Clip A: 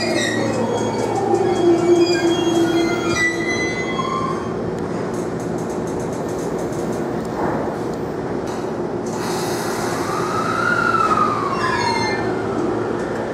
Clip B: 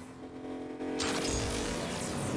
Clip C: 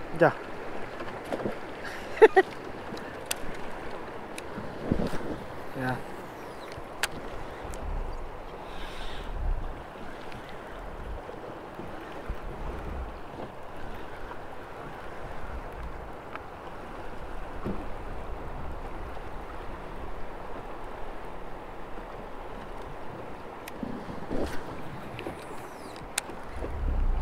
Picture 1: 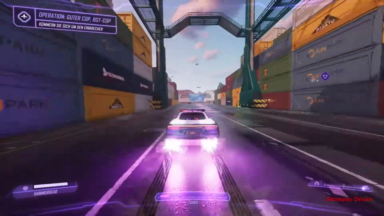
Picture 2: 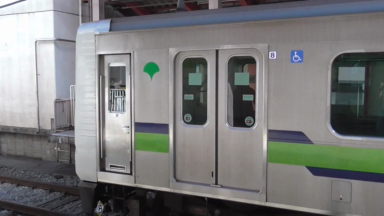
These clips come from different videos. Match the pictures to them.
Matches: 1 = B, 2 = A